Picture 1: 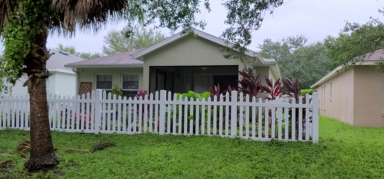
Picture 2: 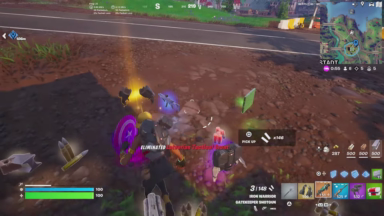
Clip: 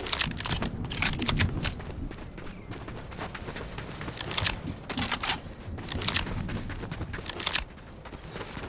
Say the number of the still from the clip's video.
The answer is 2